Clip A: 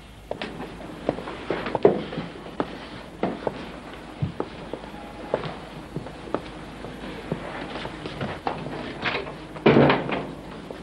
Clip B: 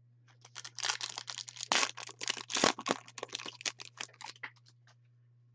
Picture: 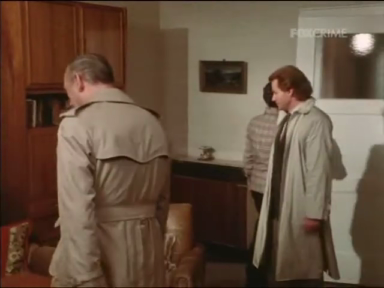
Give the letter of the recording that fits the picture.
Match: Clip A